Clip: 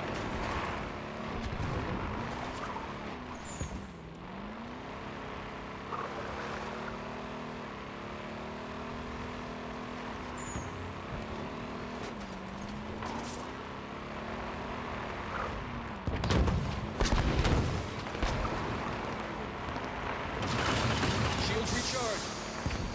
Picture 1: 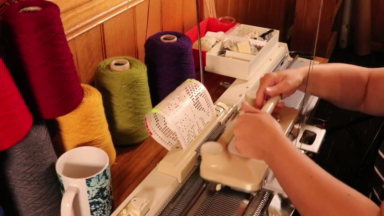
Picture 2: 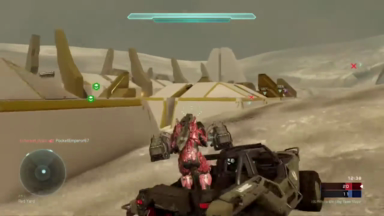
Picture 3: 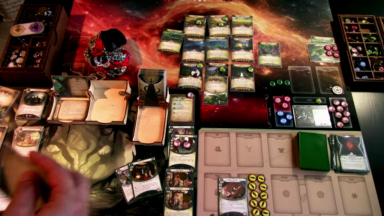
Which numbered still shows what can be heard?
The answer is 2